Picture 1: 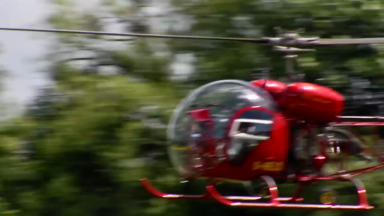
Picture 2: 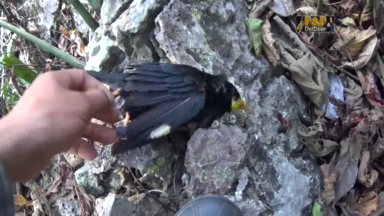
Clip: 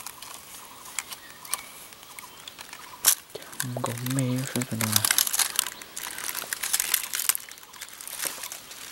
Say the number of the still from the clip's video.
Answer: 2